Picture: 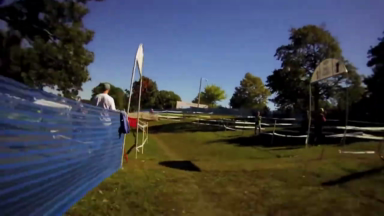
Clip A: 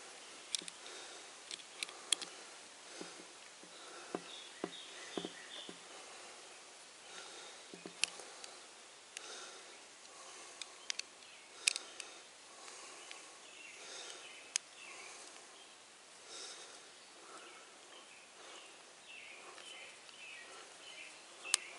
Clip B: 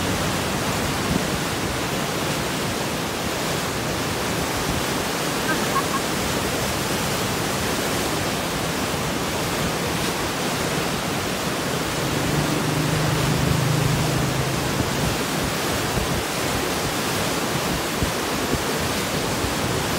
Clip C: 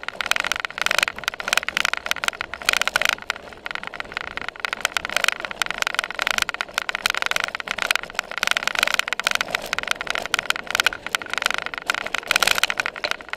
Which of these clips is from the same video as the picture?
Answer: C